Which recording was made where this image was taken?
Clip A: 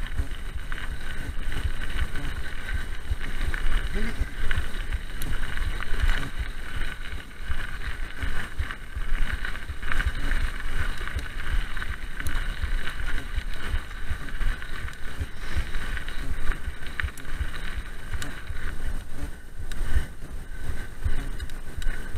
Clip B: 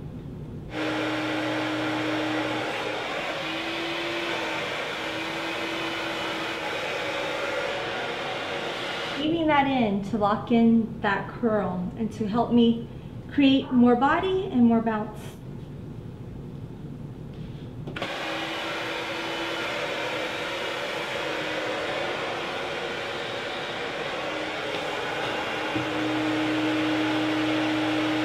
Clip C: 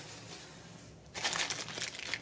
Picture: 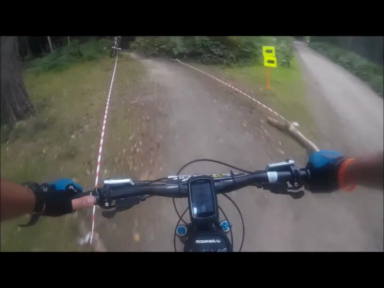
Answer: A